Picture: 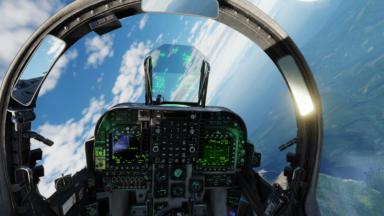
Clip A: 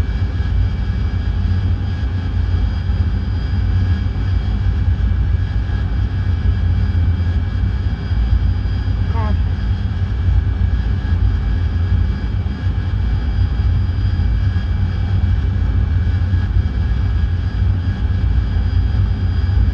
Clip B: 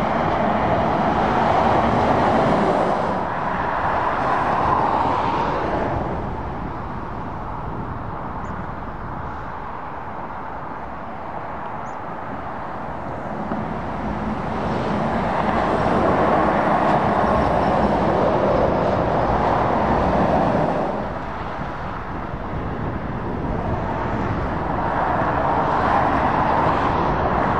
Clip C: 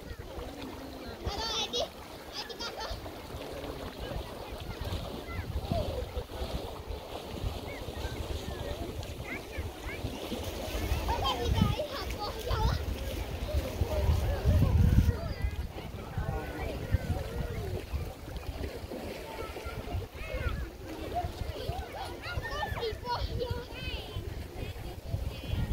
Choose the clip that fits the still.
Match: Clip A